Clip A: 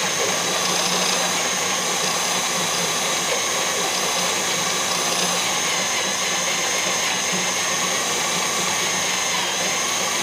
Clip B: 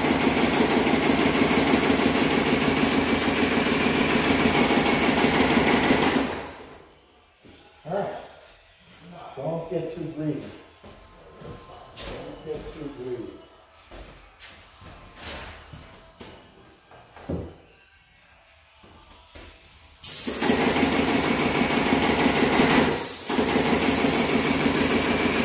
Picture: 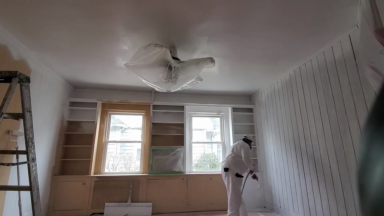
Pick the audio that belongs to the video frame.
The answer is B